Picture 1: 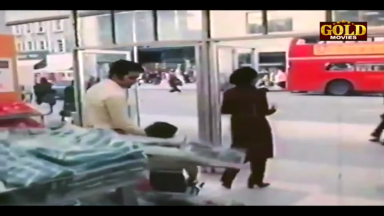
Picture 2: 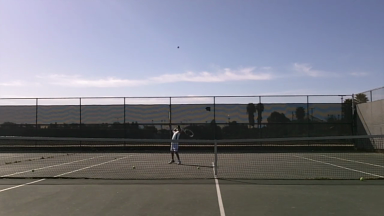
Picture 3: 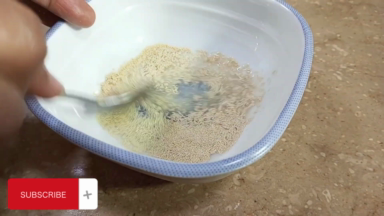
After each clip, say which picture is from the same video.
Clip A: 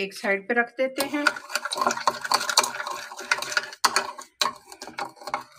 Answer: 3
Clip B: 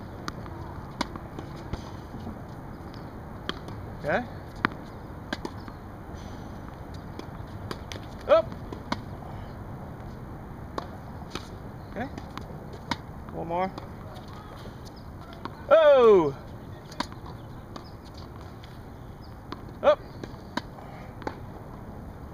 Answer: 2